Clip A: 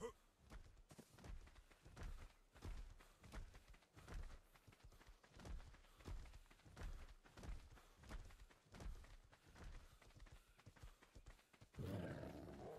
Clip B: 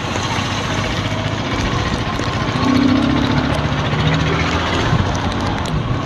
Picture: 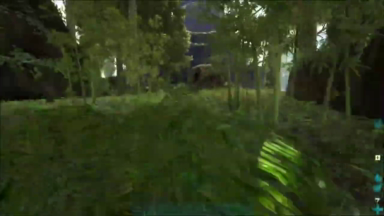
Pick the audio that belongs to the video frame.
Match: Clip A